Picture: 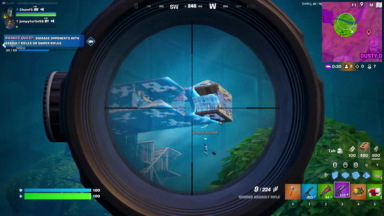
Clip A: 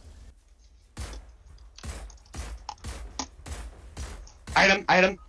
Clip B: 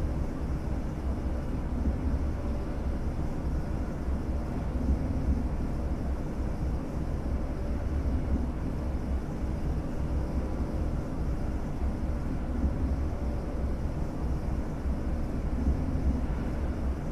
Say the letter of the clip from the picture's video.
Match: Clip A